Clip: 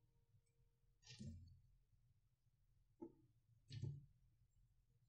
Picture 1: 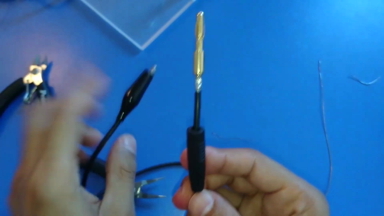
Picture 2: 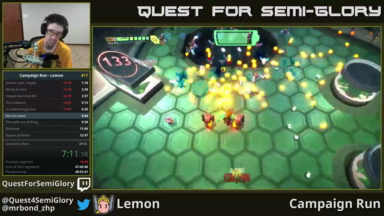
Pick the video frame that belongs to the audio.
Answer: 1